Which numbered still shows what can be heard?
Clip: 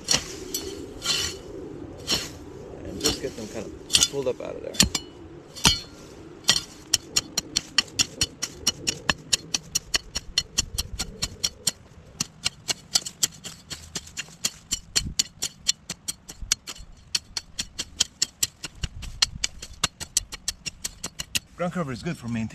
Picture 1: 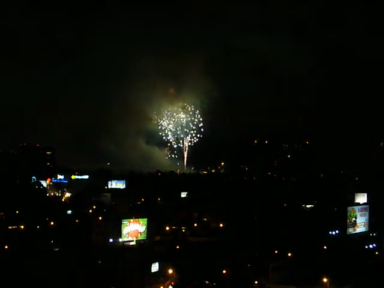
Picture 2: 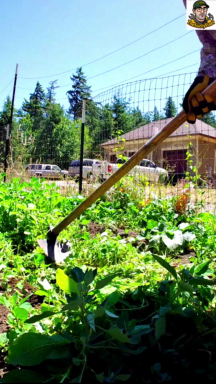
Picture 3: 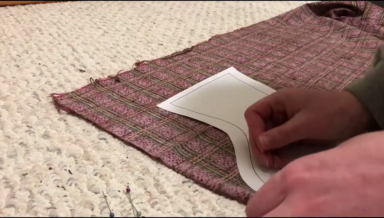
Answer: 2